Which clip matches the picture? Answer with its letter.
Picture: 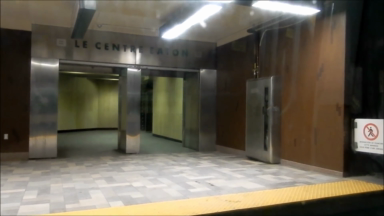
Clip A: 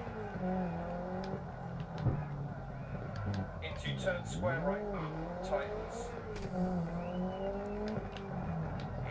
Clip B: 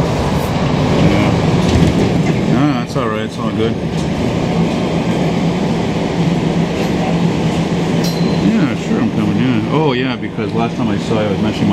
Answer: B